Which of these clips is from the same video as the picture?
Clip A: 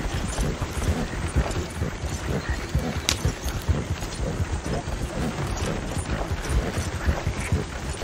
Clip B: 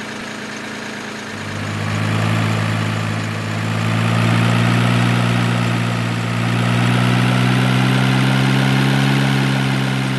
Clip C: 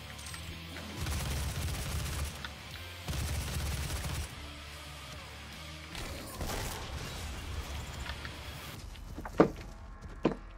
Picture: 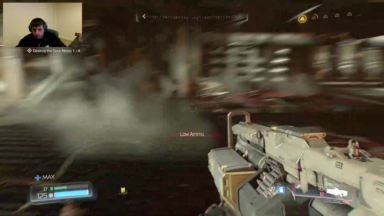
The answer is C